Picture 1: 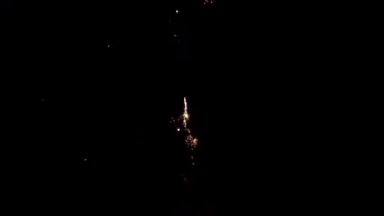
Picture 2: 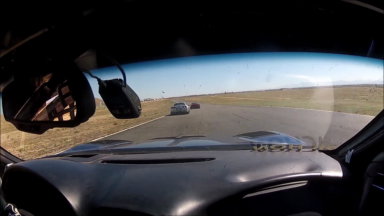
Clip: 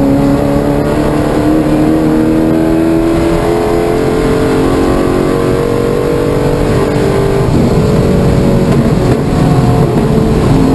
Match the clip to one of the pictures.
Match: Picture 2